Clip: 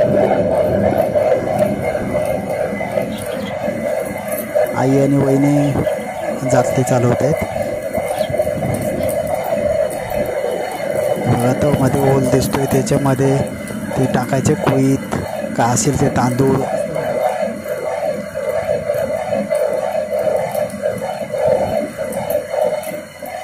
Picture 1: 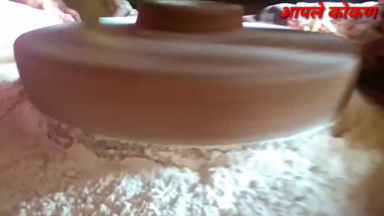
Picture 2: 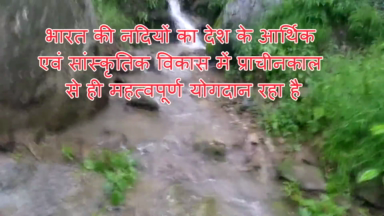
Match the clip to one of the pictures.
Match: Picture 1